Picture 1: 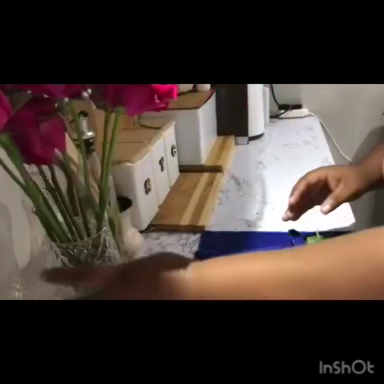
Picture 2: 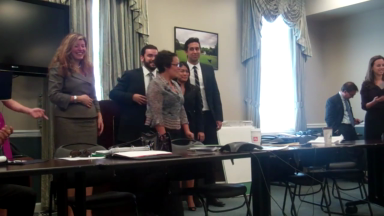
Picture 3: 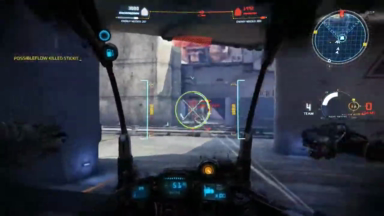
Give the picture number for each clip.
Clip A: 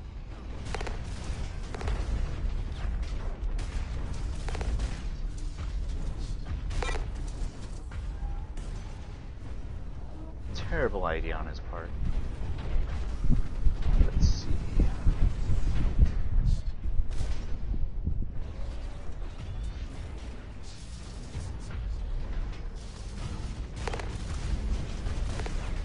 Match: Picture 3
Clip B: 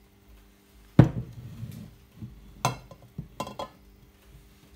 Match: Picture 1